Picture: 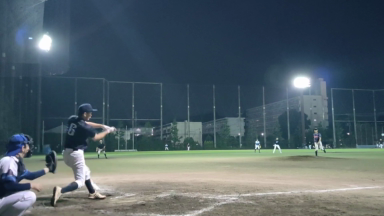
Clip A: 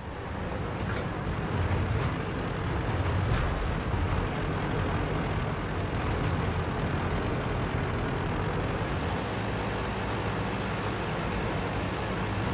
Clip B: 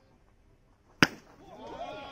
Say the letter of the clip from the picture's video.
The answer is B